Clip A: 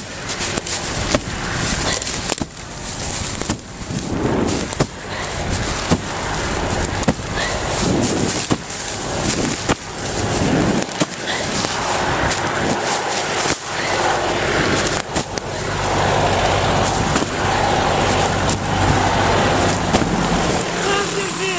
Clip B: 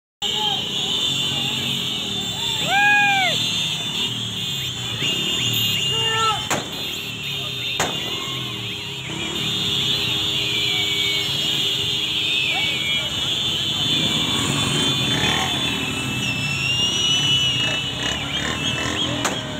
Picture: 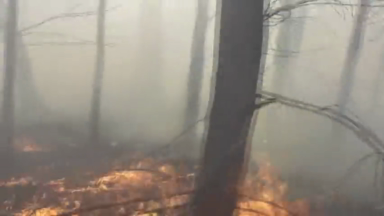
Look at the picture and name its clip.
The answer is A